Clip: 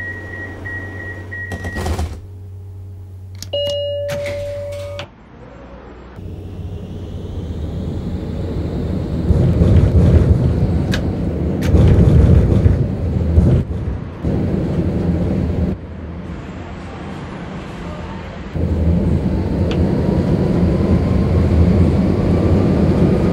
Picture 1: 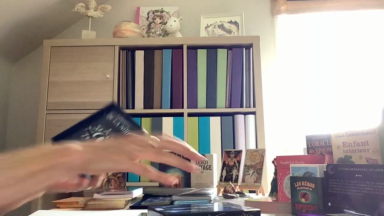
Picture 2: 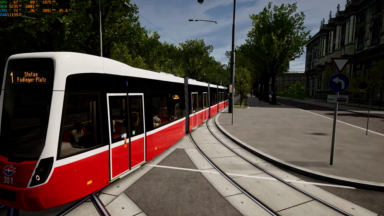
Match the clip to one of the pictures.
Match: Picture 2